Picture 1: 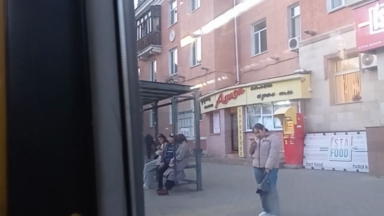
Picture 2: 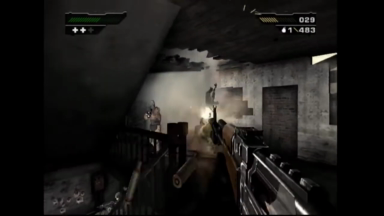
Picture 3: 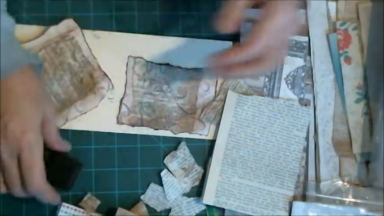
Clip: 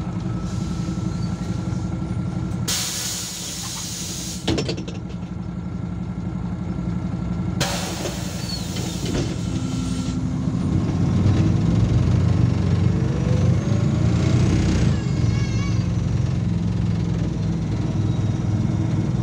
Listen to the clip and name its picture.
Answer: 1